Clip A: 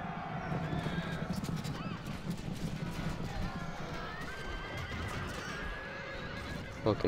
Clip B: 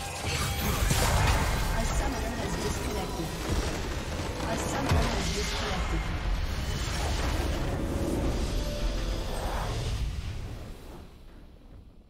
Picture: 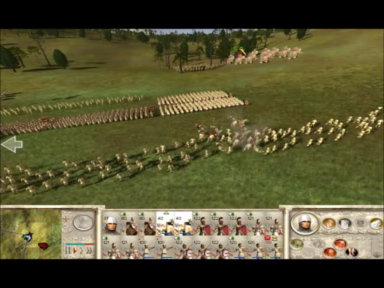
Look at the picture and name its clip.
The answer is A